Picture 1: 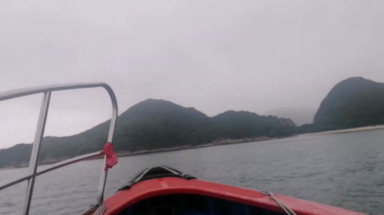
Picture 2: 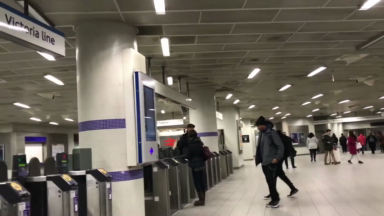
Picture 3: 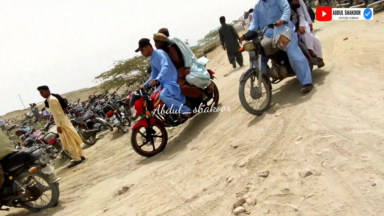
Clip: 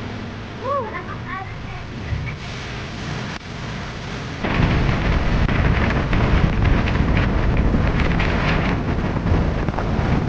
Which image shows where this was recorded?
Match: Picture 1